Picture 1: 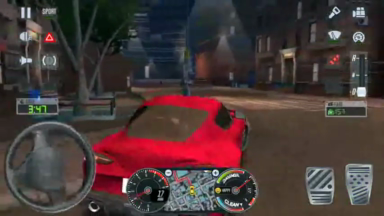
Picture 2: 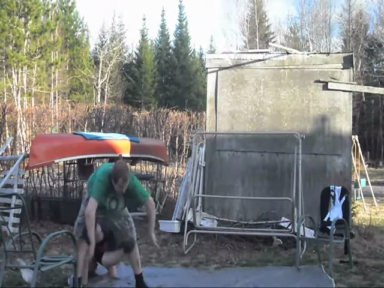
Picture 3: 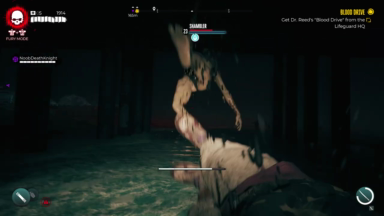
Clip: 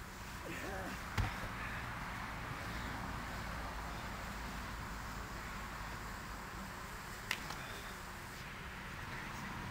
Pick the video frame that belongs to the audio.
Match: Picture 2